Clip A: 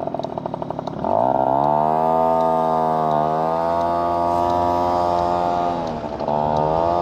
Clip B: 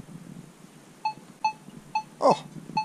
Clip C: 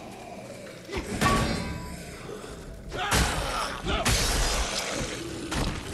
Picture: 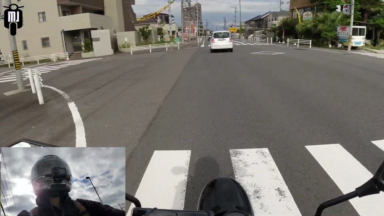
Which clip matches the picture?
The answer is A